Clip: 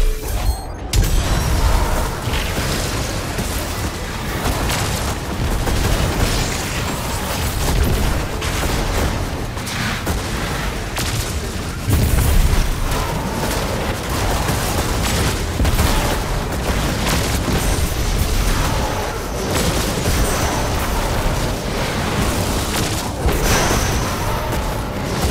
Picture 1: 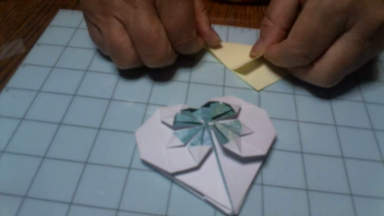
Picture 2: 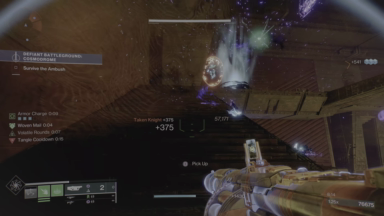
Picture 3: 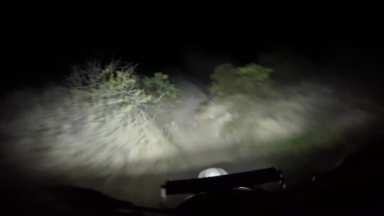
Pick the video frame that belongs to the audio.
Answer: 2